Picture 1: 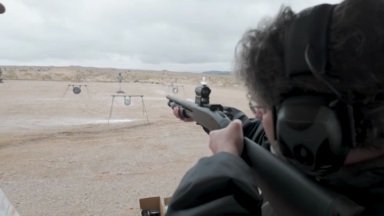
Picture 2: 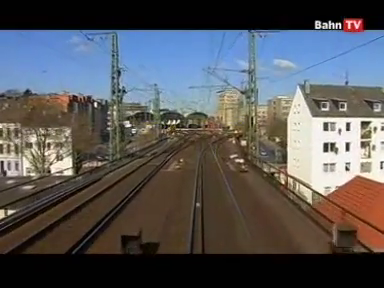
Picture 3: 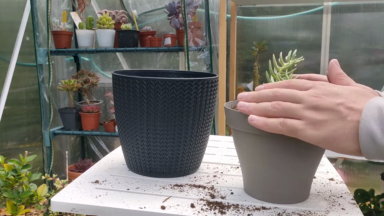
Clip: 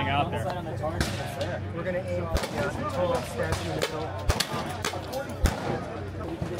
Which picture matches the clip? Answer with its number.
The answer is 1